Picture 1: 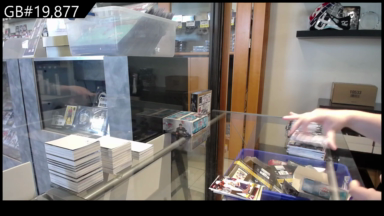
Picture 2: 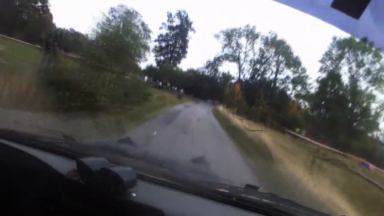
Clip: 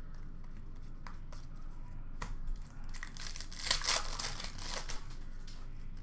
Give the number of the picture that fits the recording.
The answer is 1